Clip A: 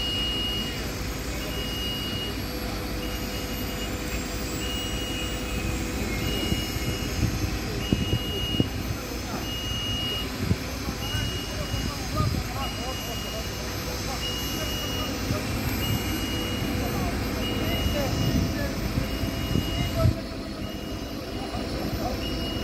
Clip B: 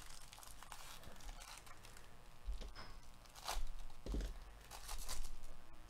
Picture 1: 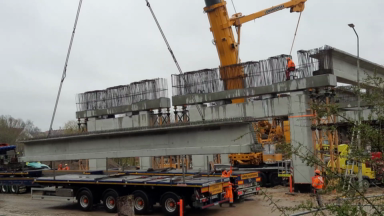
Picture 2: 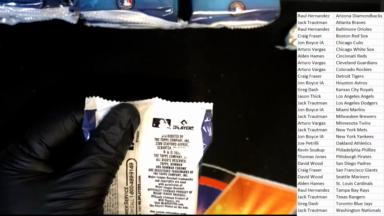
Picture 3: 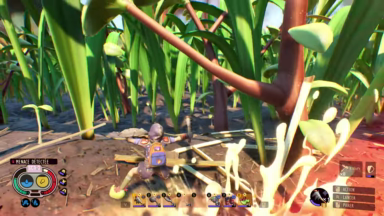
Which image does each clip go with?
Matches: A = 1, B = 2